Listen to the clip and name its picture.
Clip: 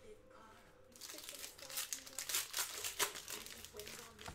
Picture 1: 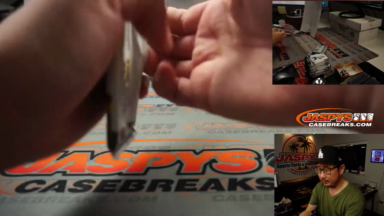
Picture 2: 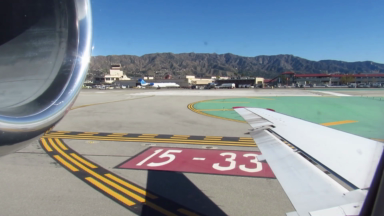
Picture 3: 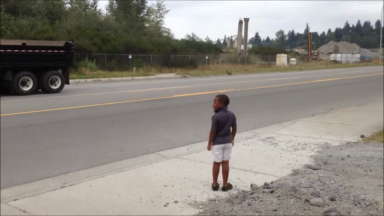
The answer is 1